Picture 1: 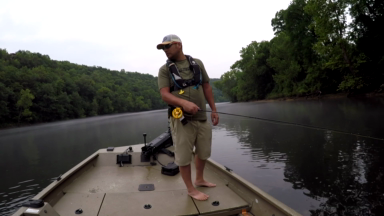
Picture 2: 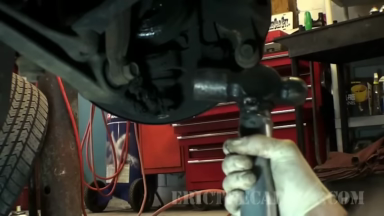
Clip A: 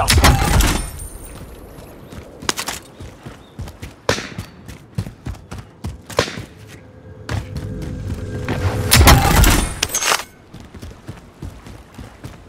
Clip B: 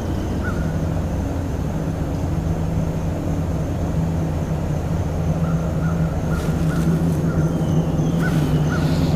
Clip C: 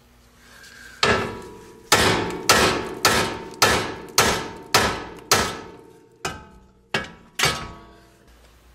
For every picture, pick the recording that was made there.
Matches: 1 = B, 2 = C